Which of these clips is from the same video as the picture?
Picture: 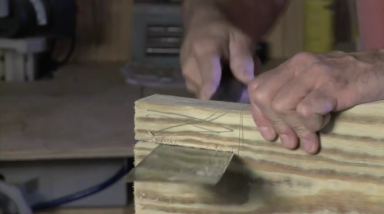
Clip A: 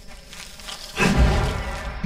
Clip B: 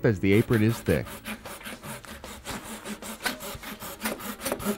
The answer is B